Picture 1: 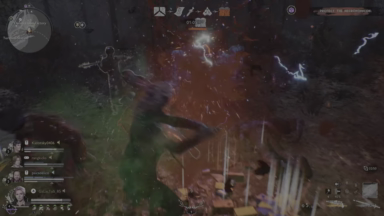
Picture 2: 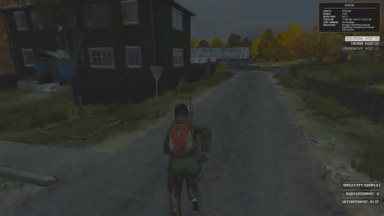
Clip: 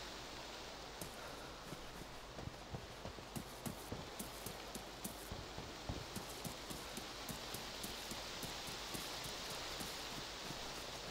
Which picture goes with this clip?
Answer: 2